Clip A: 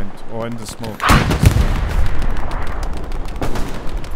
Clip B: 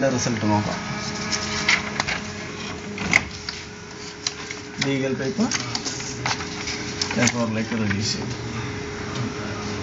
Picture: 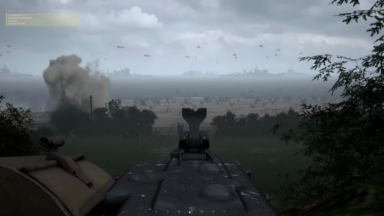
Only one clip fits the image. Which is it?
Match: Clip A